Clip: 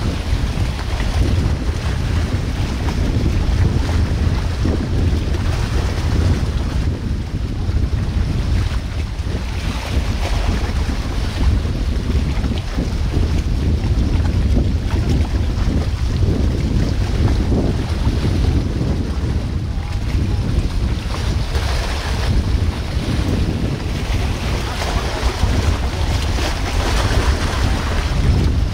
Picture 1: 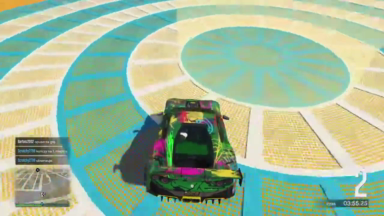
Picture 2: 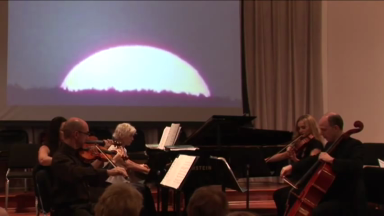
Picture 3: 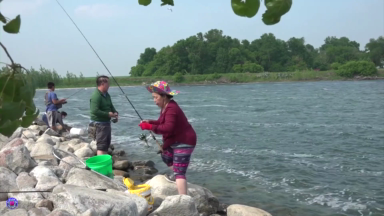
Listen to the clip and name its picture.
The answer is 3